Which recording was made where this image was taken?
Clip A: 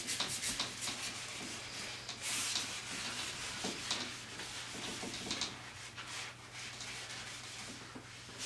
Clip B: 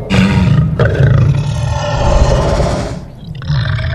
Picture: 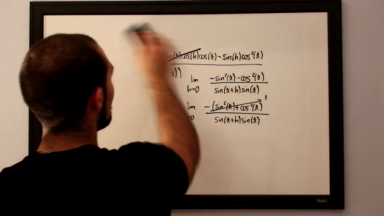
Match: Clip A